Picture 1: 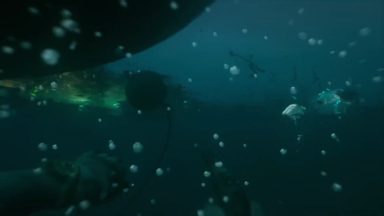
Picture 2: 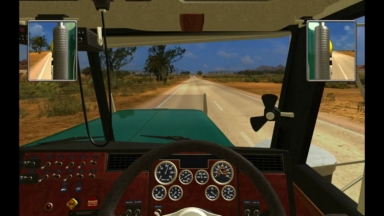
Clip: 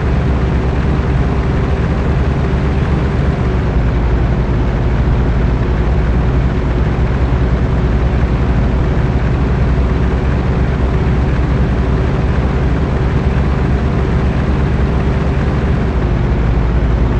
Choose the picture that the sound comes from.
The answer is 2